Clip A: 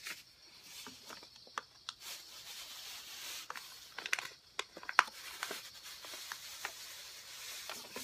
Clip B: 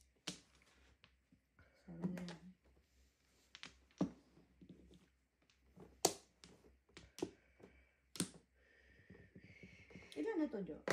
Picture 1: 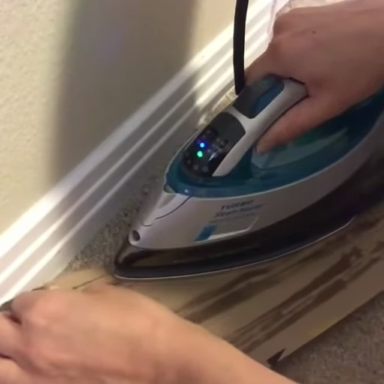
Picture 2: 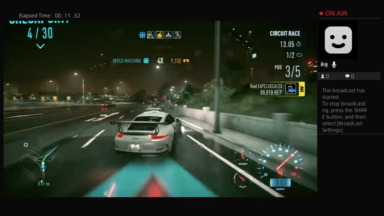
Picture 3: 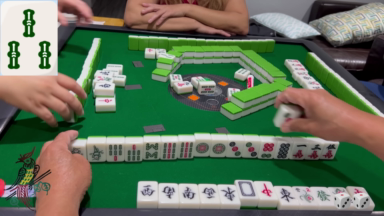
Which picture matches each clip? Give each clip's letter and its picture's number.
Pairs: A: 1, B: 3